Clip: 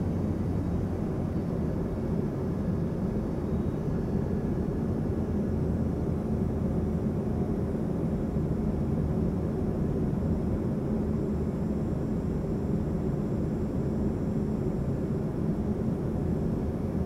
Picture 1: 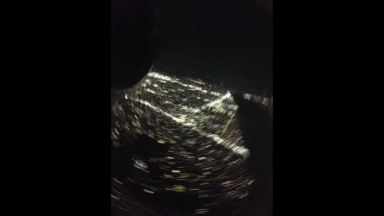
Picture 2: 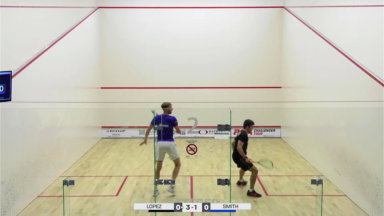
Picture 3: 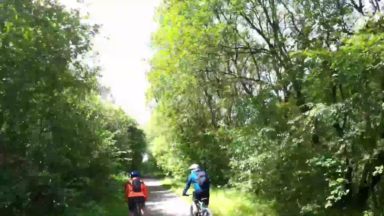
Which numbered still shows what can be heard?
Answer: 1